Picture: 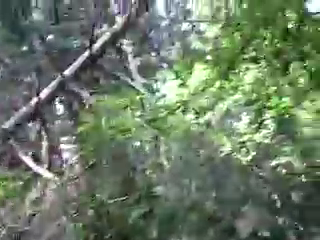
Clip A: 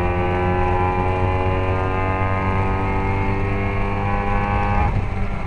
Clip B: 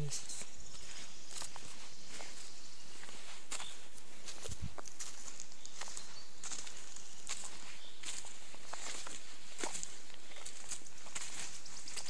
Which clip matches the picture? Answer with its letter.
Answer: B